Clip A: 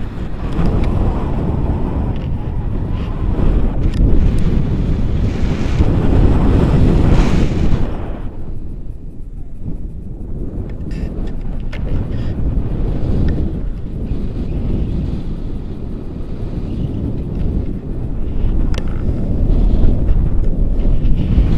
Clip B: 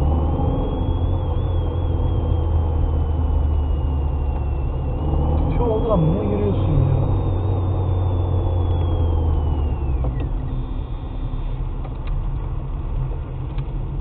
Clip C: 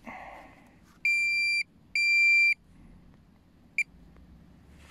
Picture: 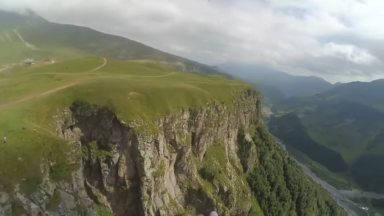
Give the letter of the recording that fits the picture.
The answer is A